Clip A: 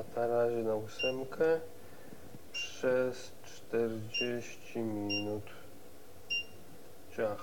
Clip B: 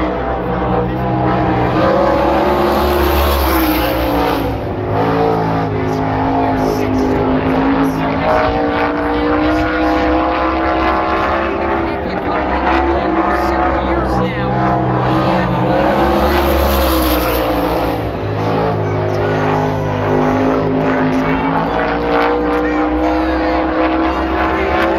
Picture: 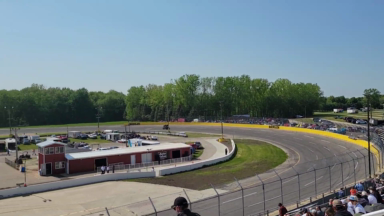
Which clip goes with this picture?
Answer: B